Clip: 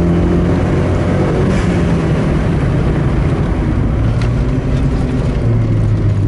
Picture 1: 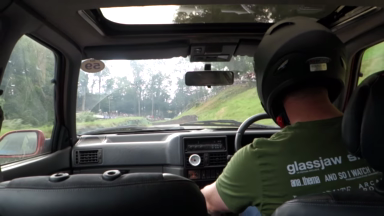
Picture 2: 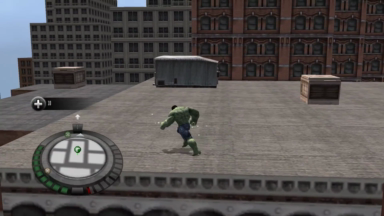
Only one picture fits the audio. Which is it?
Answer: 1